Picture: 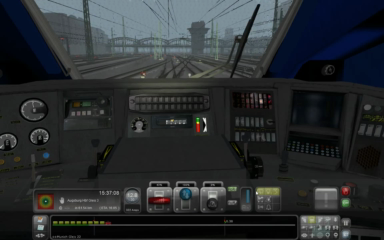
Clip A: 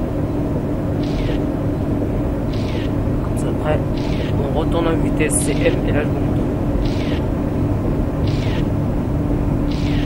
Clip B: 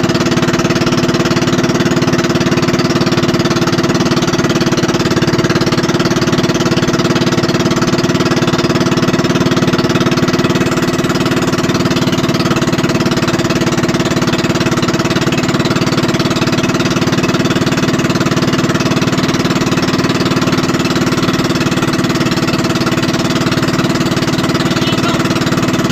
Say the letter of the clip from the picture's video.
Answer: A